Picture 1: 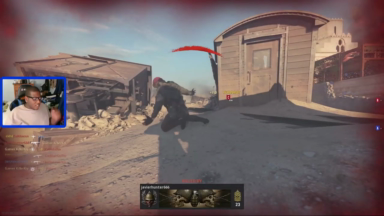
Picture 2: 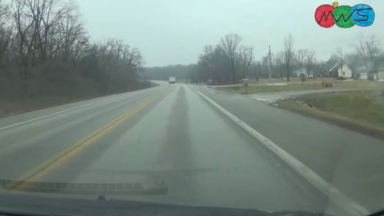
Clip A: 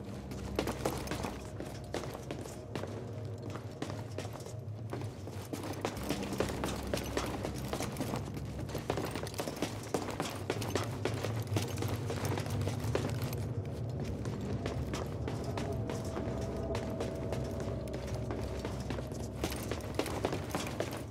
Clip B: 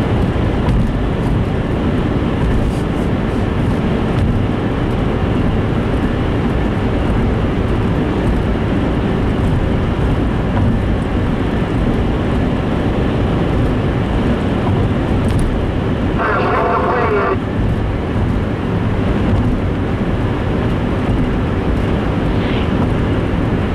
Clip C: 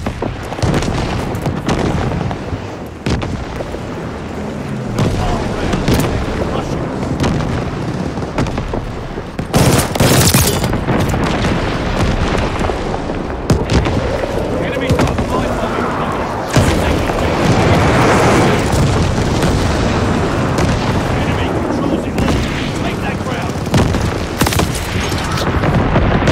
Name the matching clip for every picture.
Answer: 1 C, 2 B